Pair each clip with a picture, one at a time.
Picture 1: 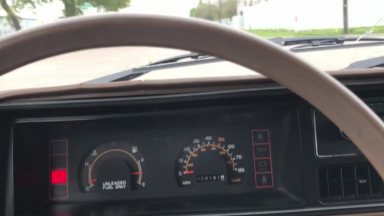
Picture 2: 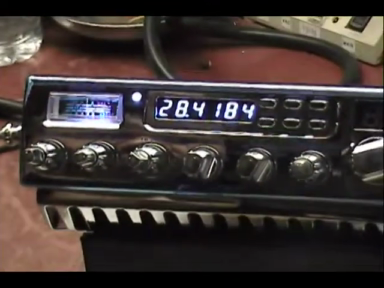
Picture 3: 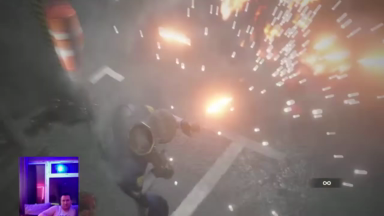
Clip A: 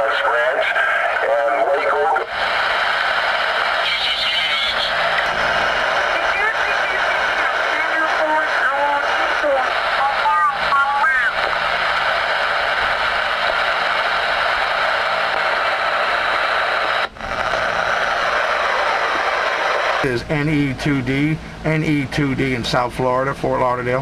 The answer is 2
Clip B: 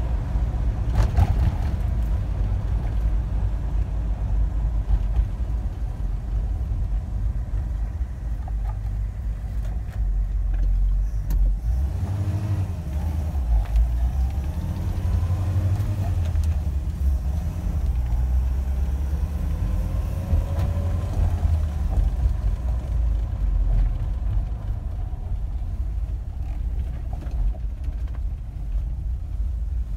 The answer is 1